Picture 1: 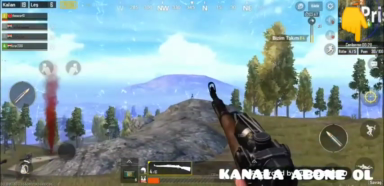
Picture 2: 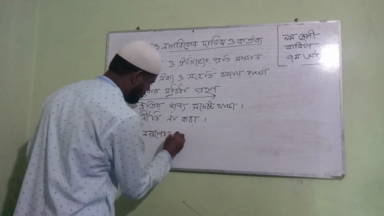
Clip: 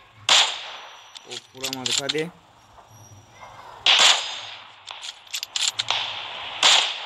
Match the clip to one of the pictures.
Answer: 1